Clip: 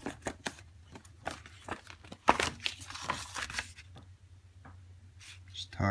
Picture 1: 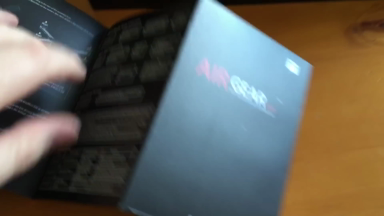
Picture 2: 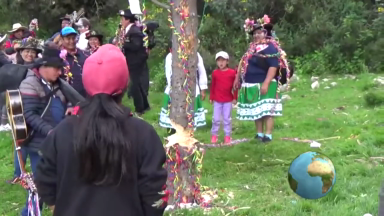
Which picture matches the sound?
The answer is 1